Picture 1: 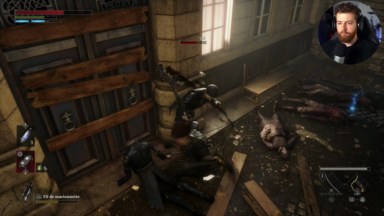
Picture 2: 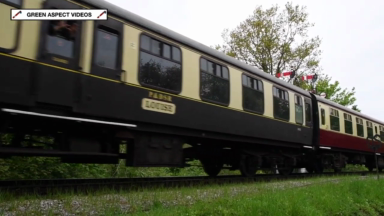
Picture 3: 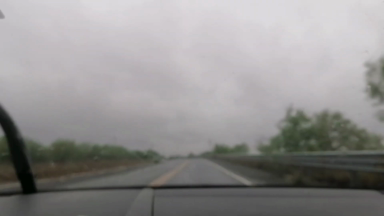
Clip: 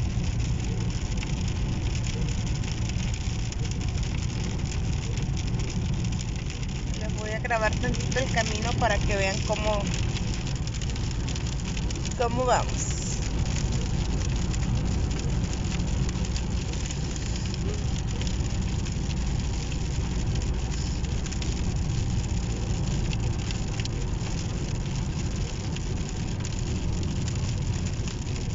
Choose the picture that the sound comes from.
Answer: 3